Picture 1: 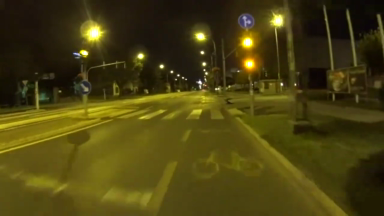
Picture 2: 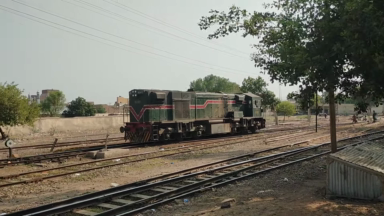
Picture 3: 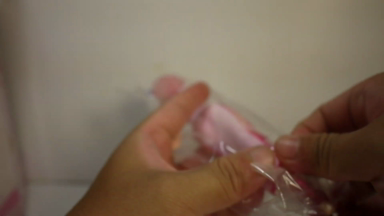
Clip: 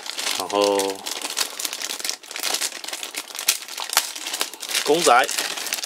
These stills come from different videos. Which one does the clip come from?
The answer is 3